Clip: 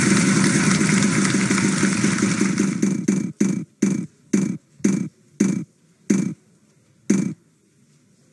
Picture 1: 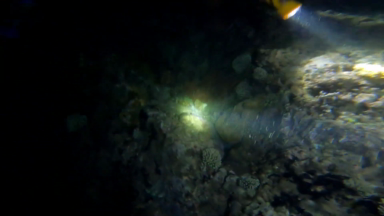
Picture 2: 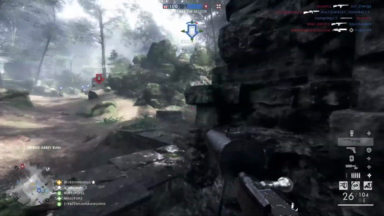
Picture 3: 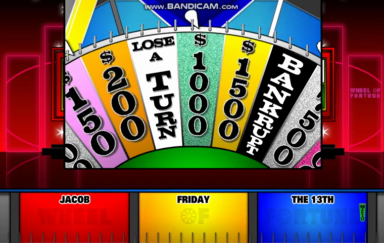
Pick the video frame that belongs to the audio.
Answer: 3